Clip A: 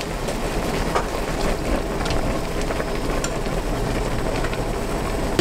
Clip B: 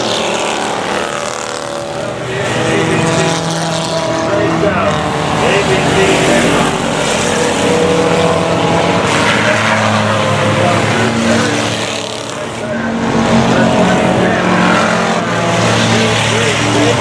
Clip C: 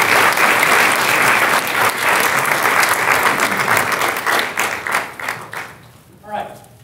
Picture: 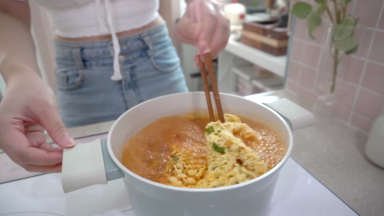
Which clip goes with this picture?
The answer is A